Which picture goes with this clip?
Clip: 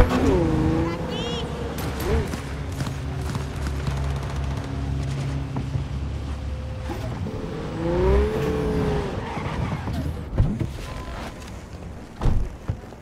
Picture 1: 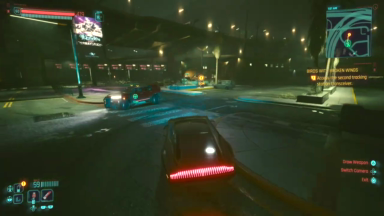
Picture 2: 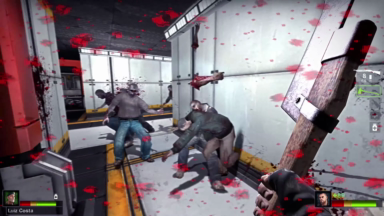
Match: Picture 1